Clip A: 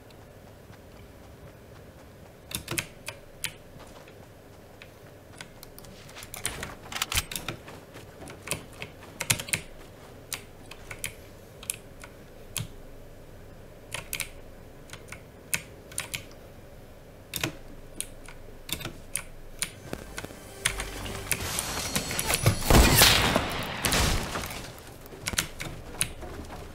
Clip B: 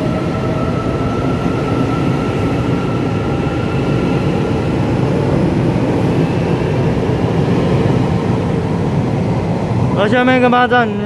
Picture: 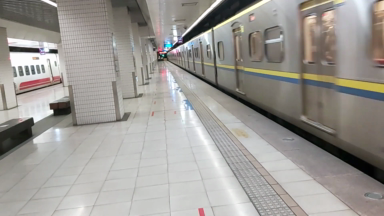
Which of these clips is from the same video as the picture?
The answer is B